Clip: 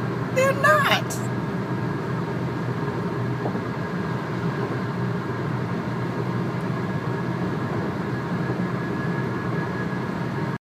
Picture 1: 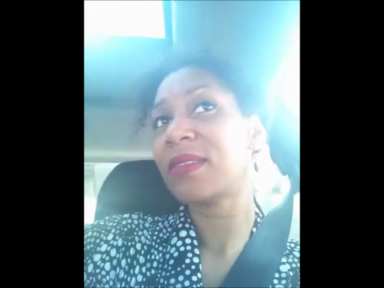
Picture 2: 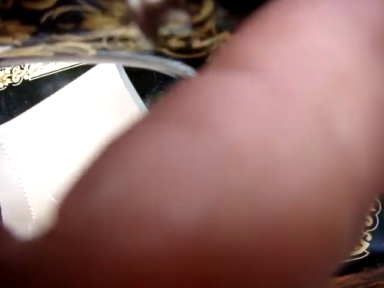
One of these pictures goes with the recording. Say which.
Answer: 1